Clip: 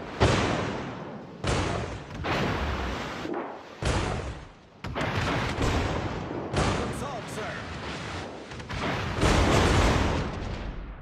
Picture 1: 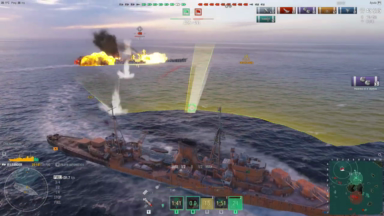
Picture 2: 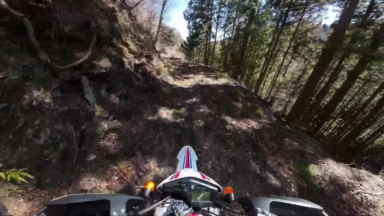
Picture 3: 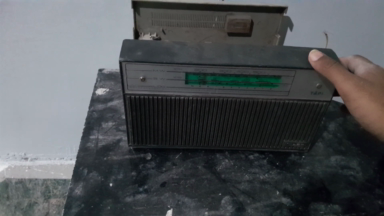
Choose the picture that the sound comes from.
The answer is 1